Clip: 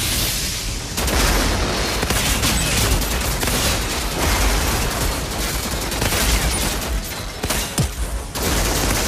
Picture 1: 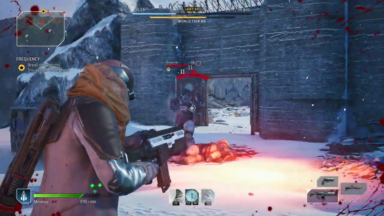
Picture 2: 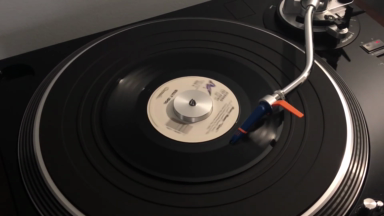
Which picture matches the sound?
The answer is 1